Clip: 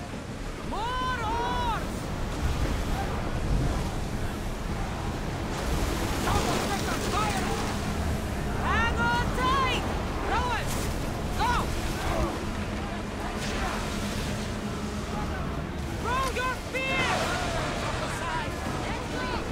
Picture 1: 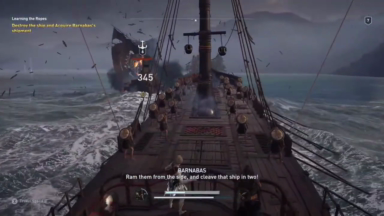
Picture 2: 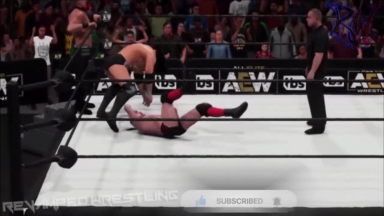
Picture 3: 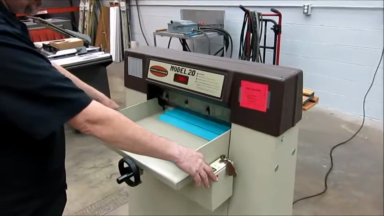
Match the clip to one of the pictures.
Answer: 1